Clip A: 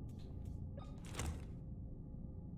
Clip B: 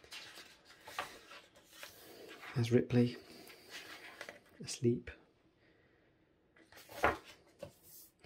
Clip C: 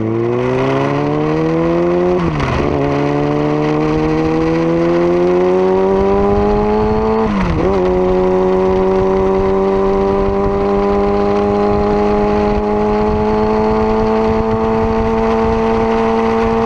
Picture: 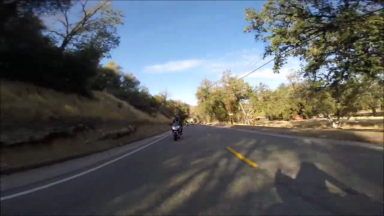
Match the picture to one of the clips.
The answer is C